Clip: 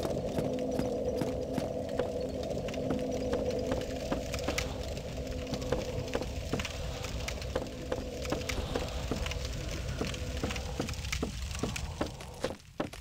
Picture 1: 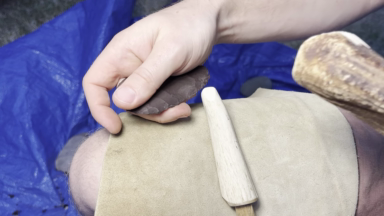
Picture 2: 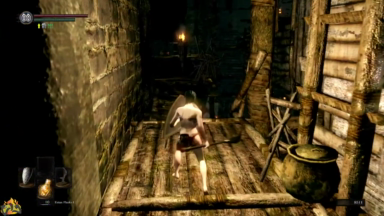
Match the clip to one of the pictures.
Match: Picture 2